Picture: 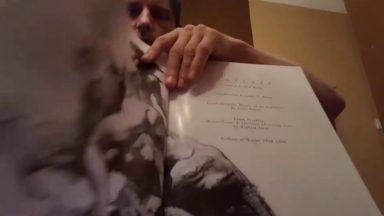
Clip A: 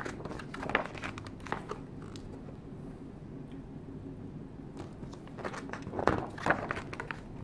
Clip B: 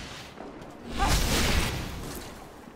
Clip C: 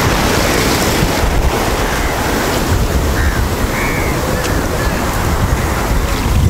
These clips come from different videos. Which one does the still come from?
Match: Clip A